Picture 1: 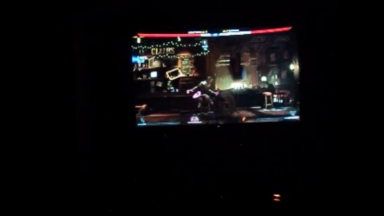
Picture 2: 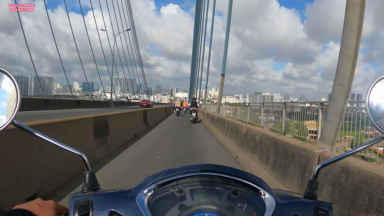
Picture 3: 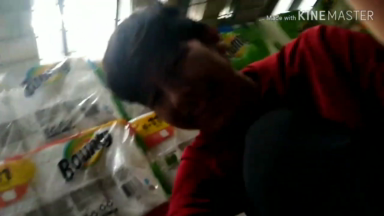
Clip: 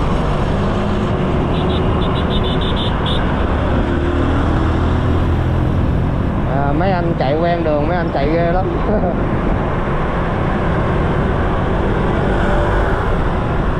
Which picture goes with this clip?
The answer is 2